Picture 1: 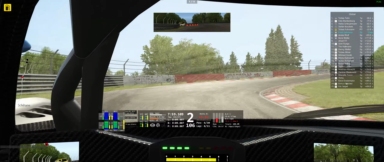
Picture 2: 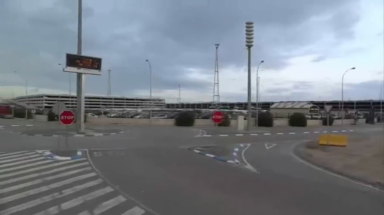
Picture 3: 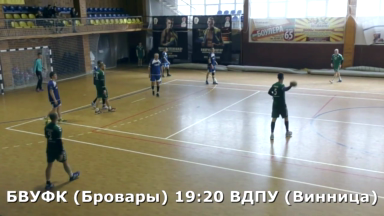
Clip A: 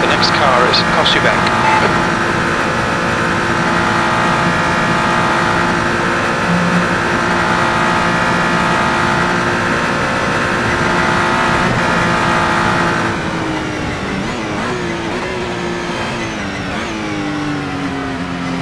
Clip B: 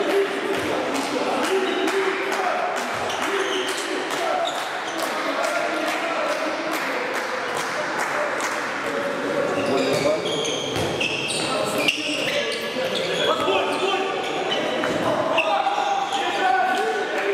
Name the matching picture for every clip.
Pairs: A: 1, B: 3